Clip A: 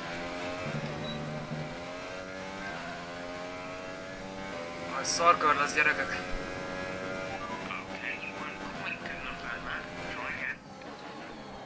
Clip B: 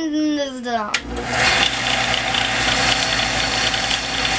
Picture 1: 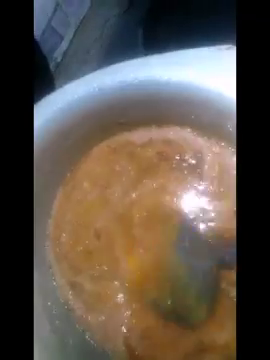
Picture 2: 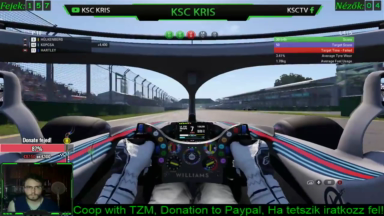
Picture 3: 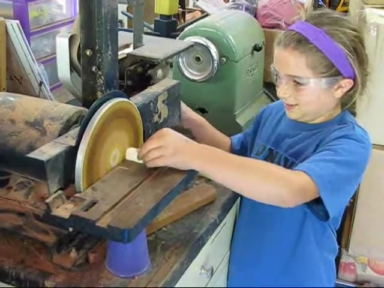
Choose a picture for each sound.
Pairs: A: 2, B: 3